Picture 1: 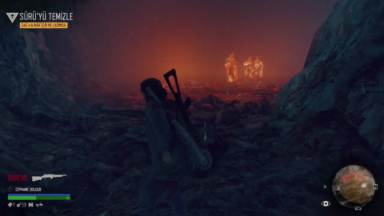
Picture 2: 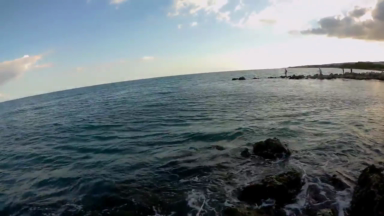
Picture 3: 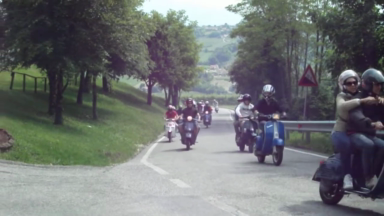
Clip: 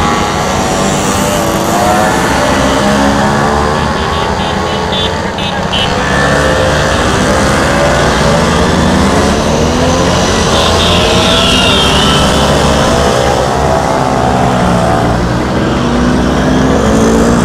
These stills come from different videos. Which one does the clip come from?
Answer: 3